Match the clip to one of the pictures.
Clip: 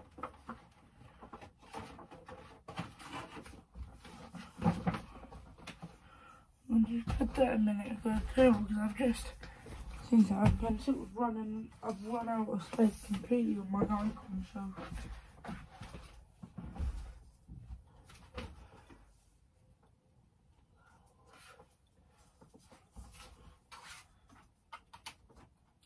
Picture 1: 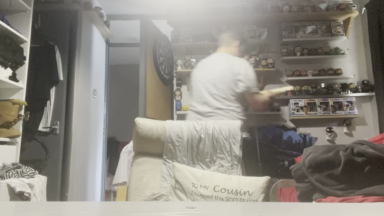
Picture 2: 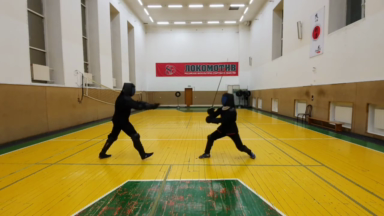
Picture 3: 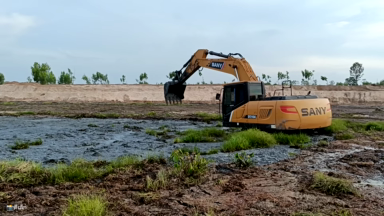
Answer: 1